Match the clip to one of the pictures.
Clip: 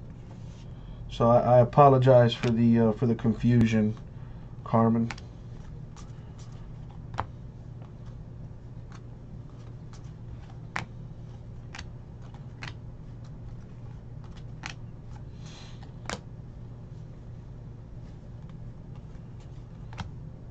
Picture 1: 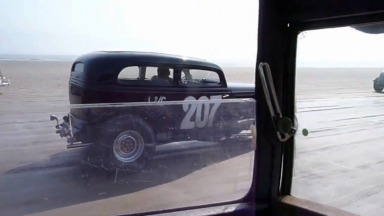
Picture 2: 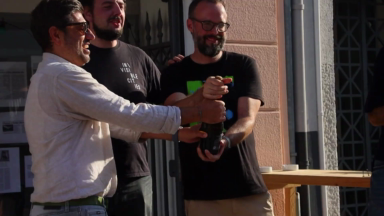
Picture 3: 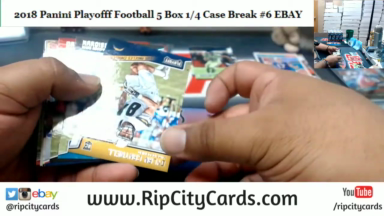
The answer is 3